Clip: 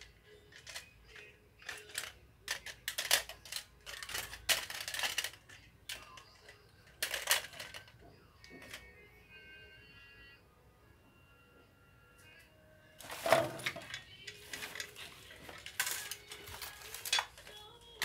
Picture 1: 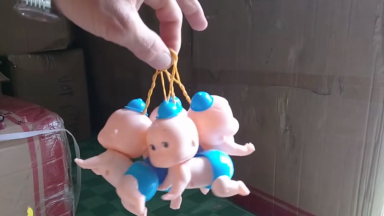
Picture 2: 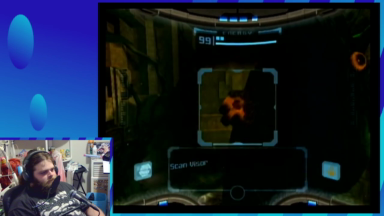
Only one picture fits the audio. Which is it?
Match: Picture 1